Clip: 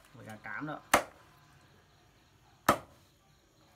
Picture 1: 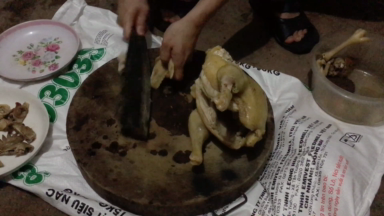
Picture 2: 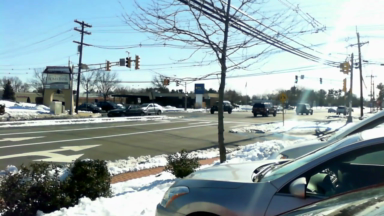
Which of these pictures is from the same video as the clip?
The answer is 1